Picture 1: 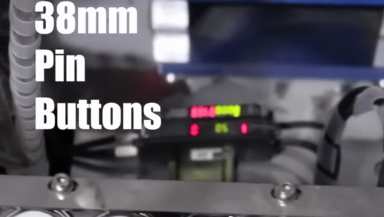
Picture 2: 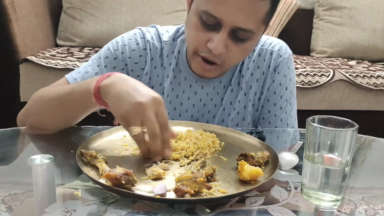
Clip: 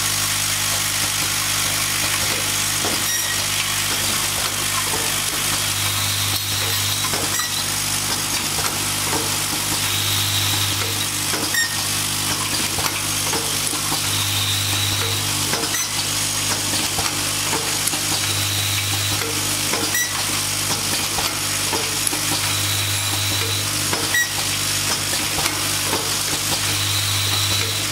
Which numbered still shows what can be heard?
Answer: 1